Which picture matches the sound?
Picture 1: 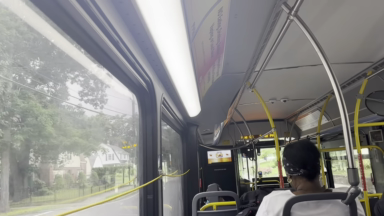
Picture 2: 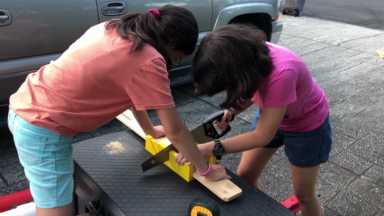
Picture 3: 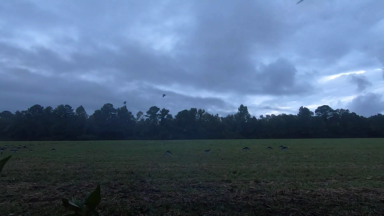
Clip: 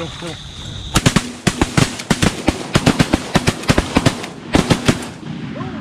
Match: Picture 3